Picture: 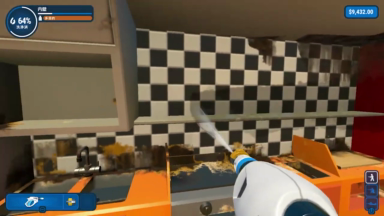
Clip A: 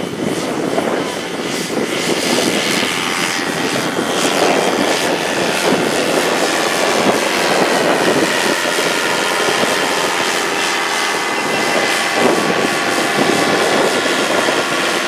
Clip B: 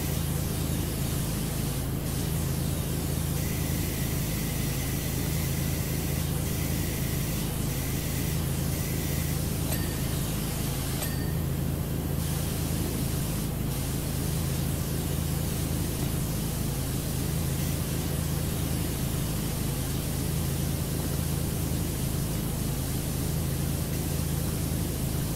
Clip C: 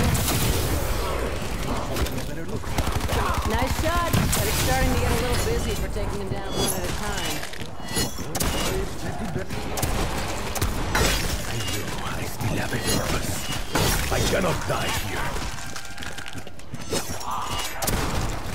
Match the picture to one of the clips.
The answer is B